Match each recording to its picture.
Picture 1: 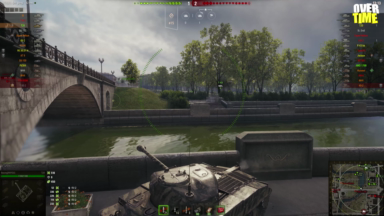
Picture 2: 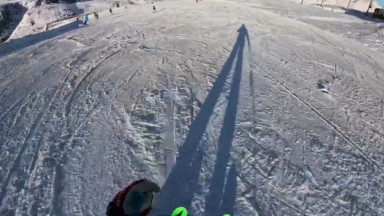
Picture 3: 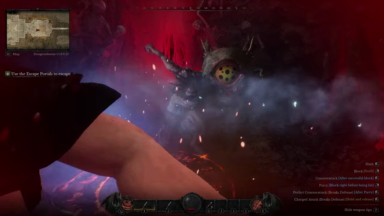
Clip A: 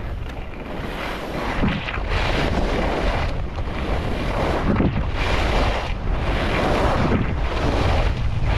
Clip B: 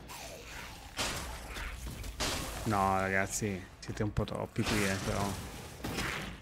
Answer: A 2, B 3